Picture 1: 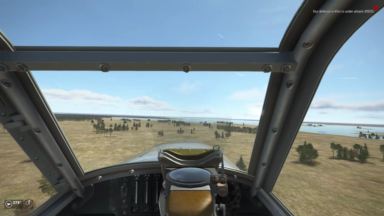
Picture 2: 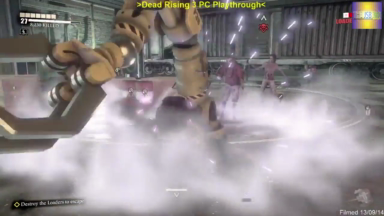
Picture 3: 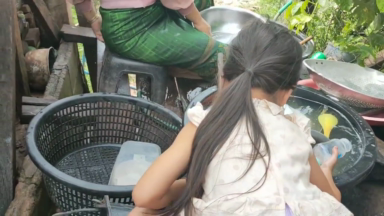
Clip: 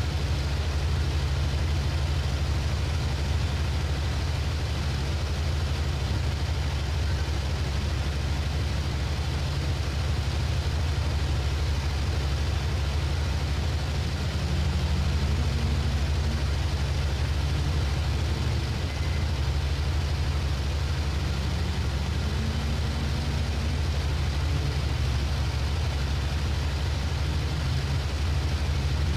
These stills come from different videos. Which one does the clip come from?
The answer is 1